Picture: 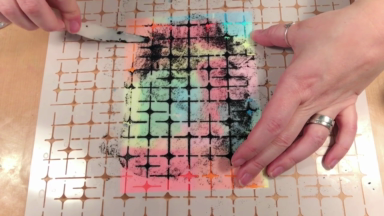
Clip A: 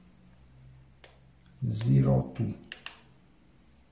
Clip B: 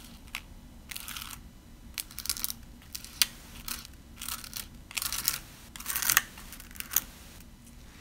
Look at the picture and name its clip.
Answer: B